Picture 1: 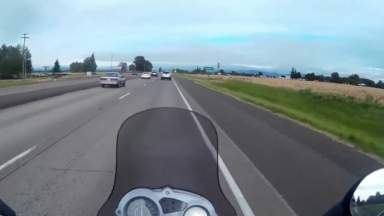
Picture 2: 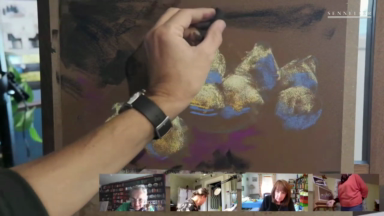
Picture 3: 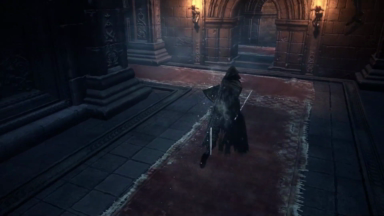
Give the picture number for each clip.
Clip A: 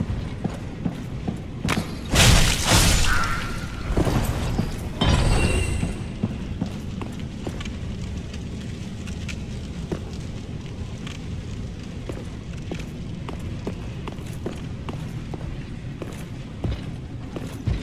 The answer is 3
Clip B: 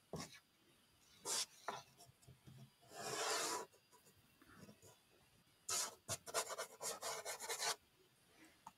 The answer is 2